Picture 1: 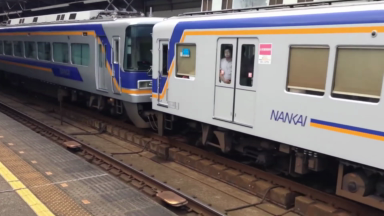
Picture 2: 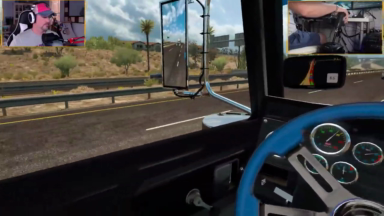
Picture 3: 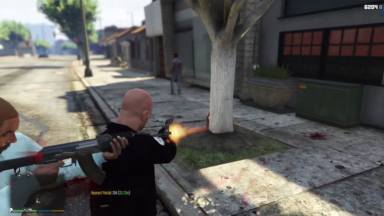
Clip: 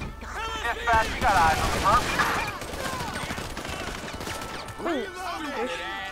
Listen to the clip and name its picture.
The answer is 3